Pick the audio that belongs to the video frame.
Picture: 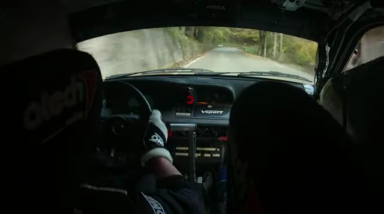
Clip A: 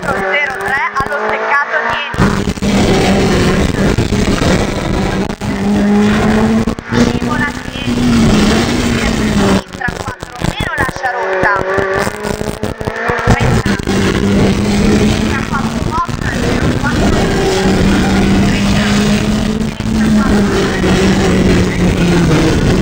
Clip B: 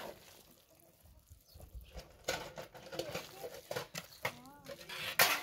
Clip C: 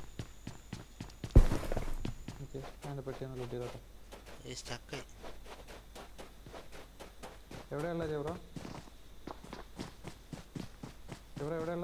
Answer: A